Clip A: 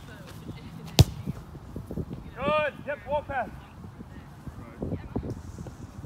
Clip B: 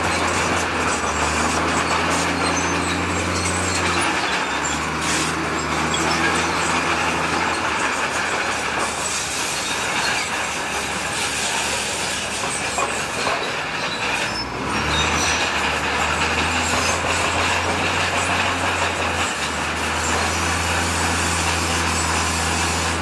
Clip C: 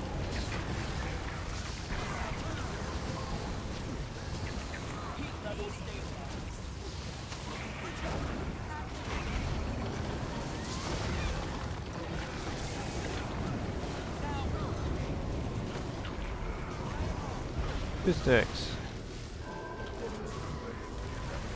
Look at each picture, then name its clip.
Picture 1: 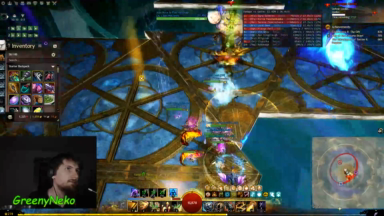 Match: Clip C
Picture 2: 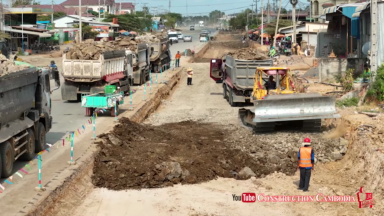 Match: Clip B